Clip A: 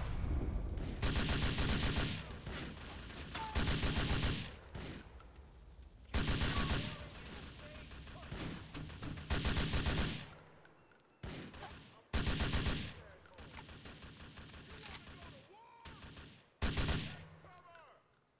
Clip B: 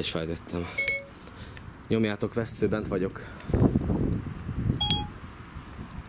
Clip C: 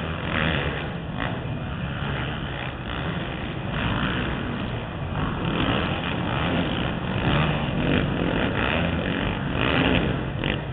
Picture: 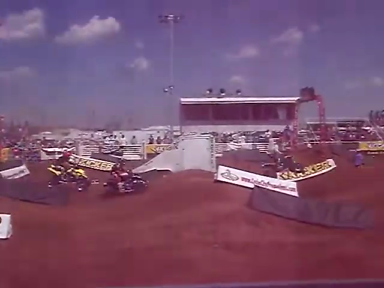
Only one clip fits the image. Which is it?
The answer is C